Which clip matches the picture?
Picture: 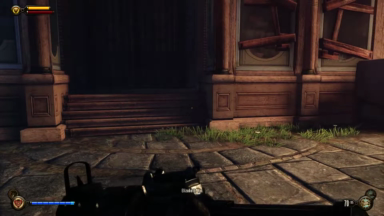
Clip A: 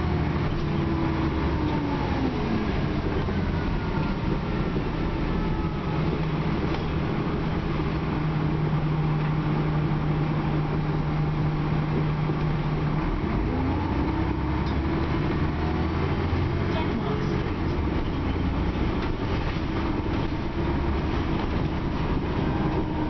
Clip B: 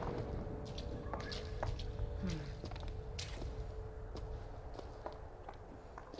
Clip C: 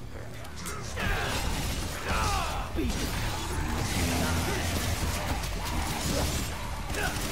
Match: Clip B